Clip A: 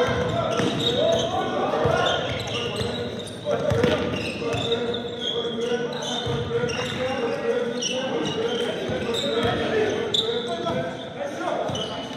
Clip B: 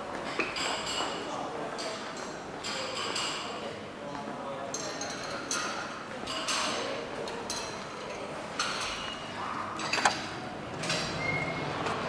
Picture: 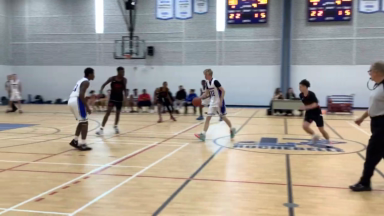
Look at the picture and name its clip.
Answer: A